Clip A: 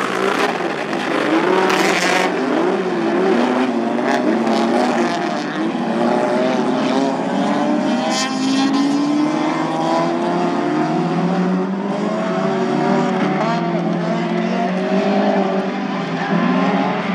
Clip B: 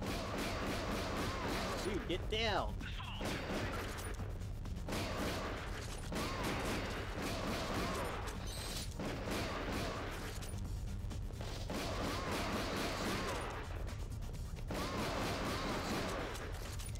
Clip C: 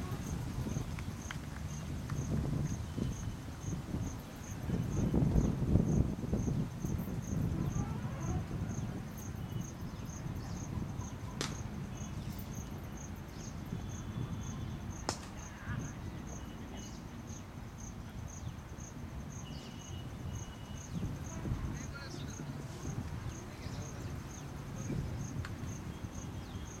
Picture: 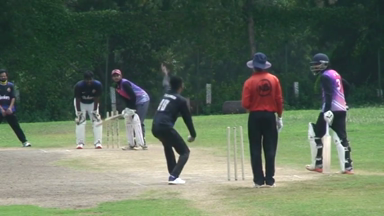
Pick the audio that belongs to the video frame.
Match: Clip C